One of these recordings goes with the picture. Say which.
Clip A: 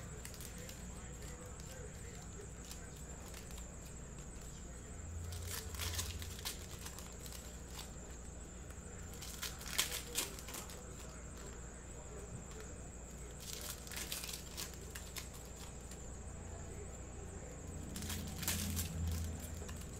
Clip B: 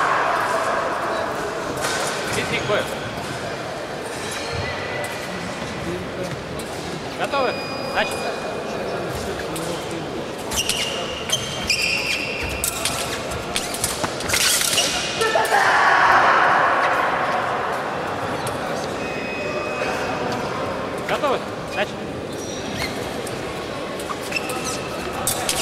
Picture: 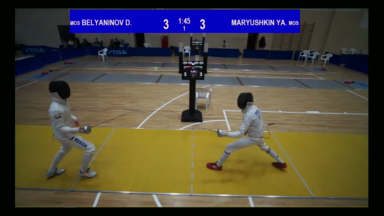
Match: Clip B